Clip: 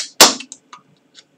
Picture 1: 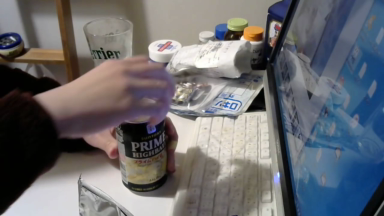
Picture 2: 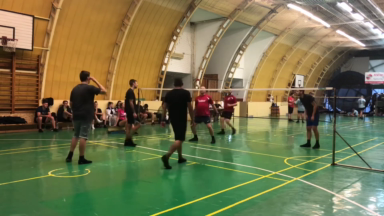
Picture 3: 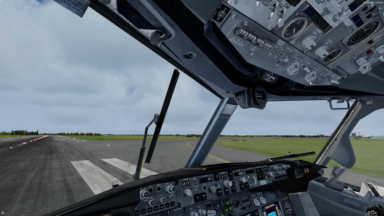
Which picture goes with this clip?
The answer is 1